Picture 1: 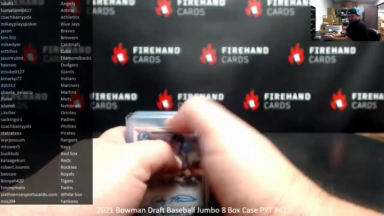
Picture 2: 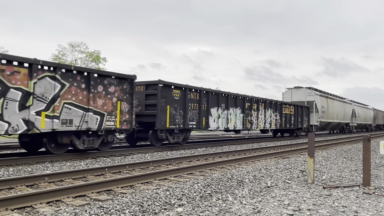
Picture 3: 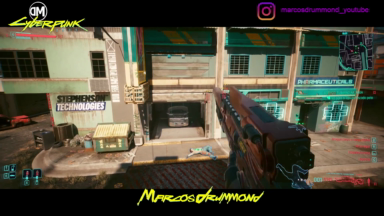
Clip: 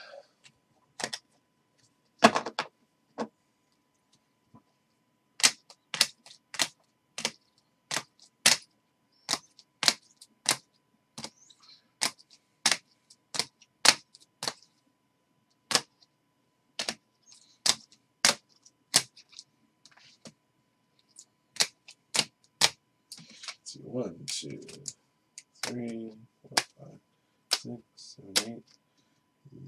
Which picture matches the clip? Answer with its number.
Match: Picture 1